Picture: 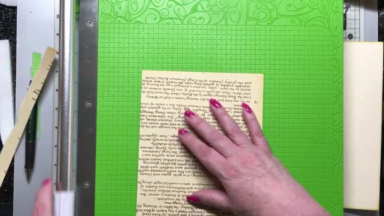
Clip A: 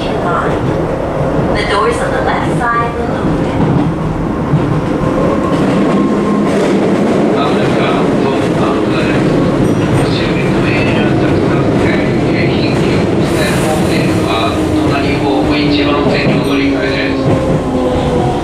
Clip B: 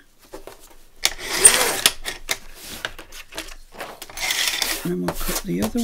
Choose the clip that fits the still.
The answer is B